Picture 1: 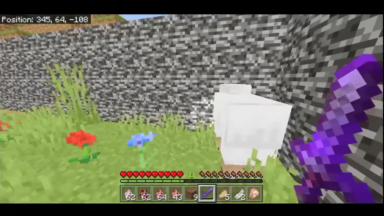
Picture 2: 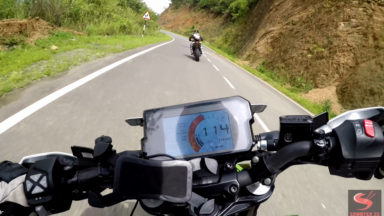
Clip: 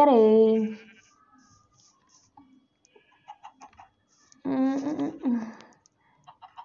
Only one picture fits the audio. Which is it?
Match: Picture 1